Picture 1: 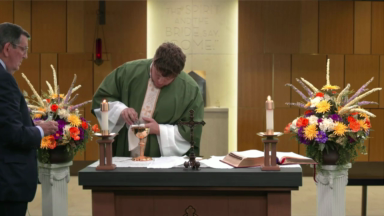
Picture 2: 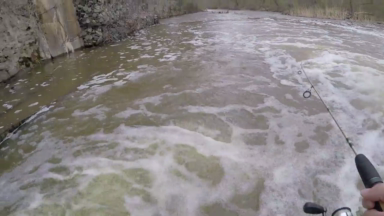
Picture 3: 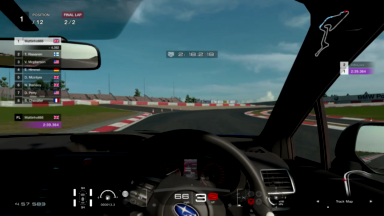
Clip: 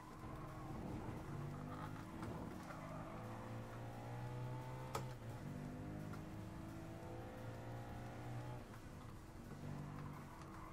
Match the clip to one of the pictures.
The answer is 3